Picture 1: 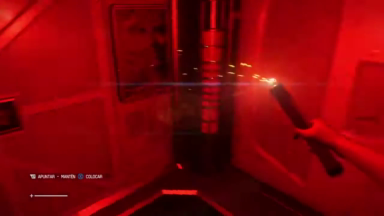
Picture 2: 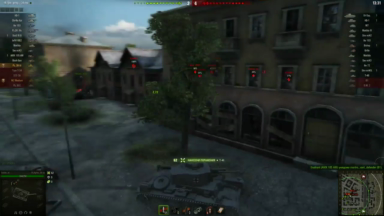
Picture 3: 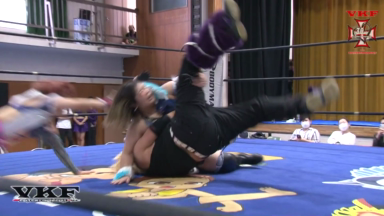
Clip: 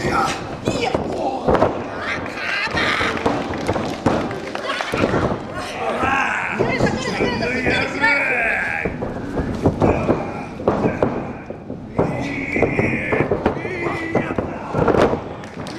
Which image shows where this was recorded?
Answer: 3